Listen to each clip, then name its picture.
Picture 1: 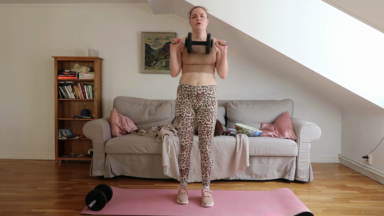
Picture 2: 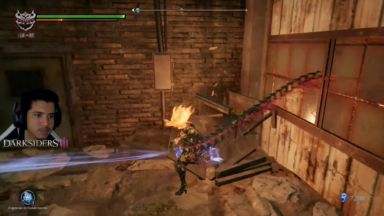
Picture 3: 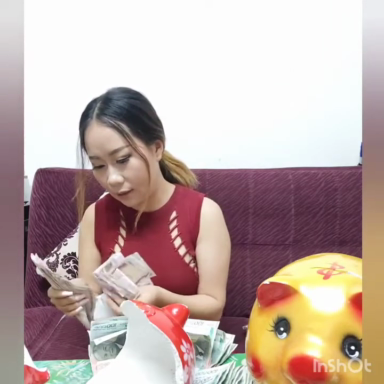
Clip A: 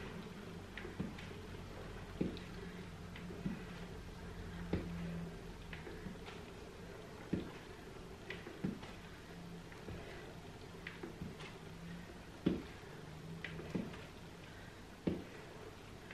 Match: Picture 1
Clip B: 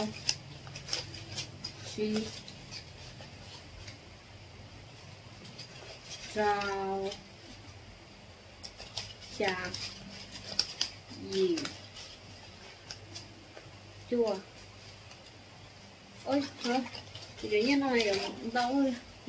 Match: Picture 3